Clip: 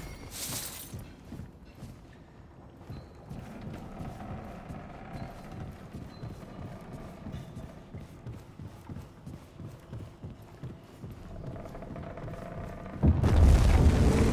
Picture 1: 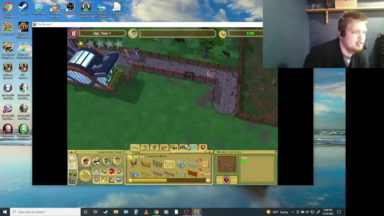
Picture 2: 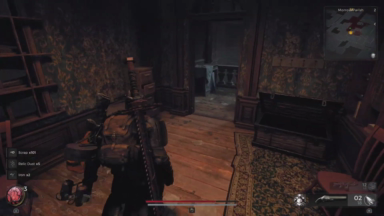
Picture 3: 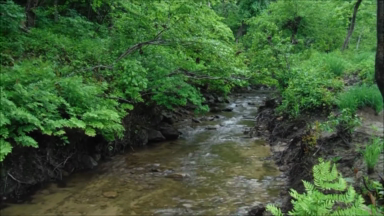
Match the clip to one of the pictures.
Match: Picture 2